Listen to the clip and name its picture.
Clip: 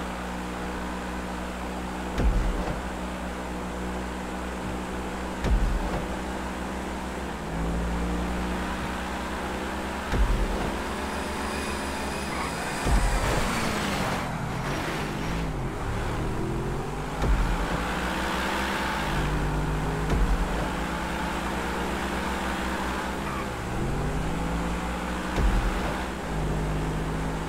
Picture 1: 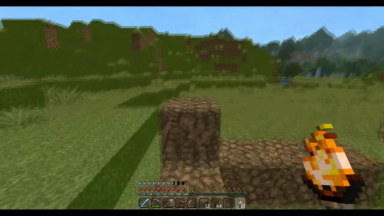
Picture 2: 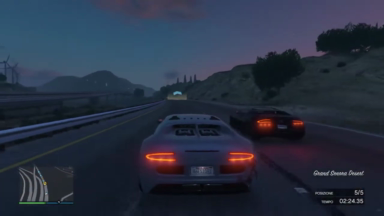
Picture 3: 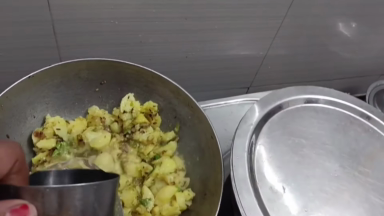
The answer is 2